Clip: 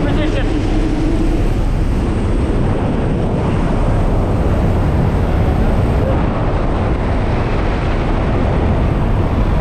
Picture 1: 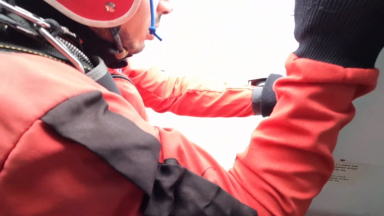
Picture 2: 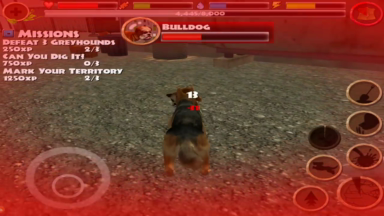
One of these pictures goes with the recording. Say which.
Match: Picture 1